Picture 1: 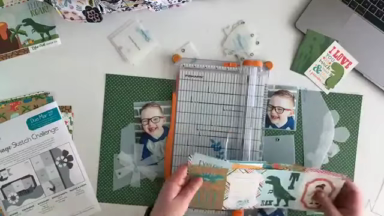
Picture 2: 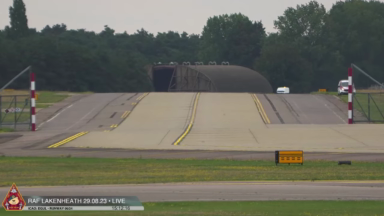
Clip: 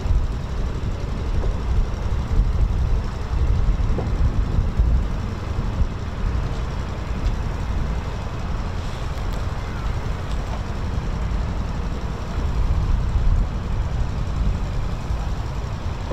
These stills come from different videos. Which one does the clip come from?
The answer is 2